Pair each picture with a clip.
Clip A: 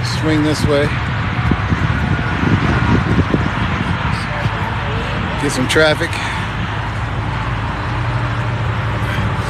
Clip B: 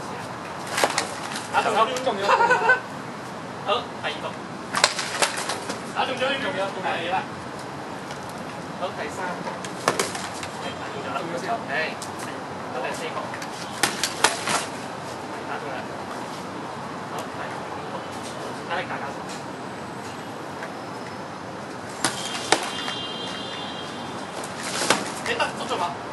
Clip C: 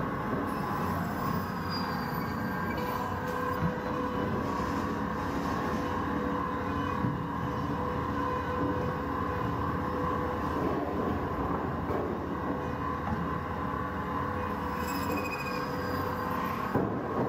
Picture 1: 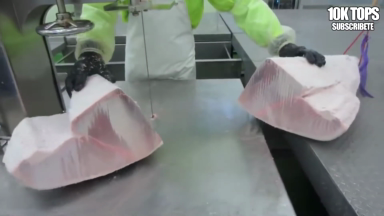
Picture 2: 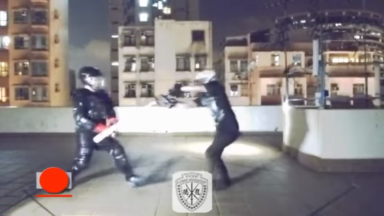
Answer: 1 C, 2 B